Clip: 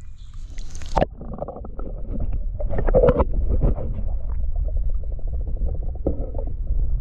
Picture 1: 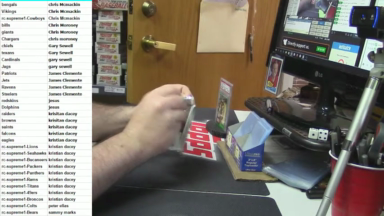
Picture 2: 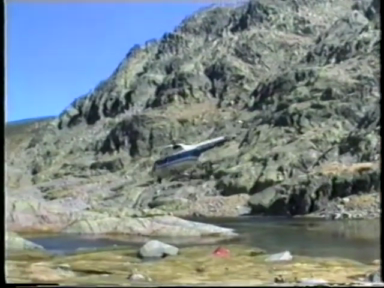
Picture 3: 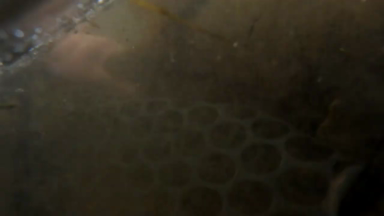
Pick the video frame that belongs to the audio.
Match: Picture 3